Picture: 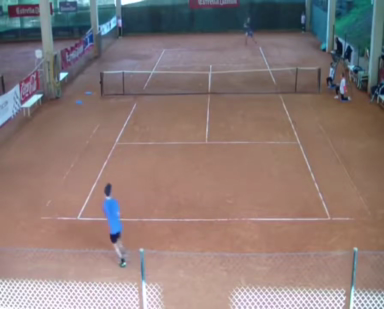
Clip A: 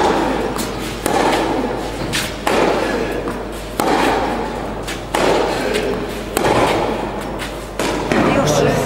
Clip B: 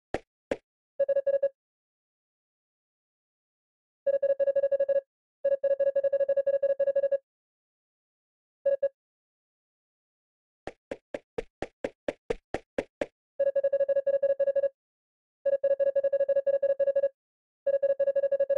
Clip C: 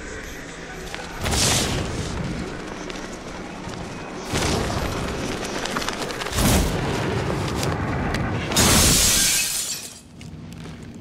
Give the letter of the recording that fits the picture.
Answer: A